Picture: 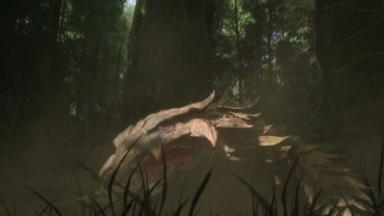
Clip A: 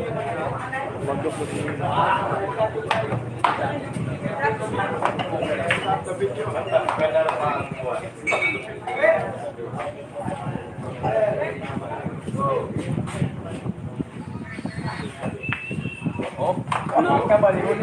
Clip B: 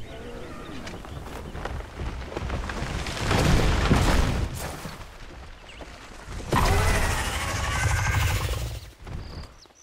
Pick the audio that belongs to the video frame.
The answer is B